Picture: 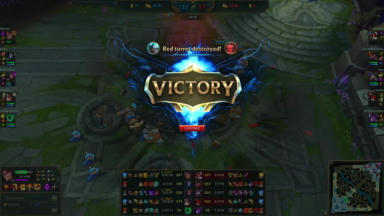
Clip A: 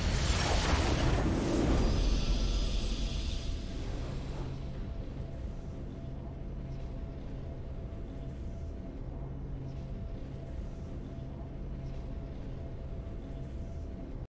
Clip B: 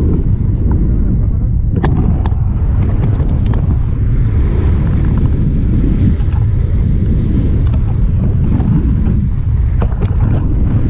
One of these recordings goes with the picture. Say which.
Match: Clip A